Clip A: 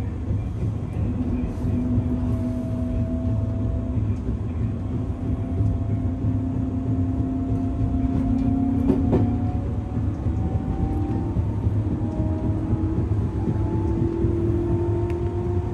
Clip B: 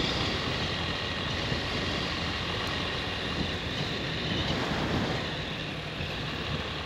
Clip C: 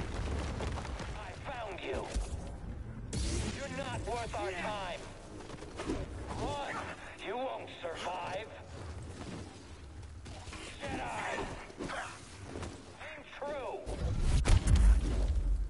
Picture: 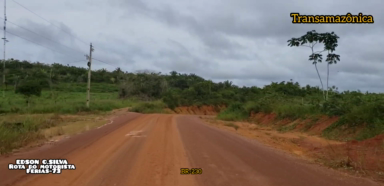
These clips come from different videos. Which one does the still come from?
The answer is B